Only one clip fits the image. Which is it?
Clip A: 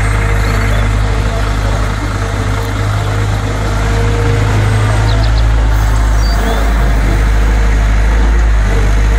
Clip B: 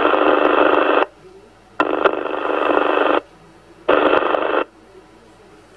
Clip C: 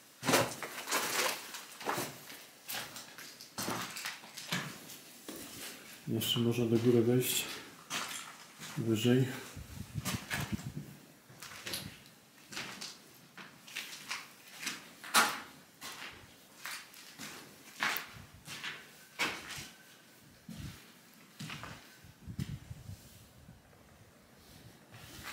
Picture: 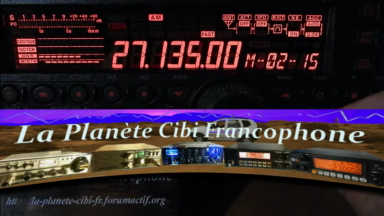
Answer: B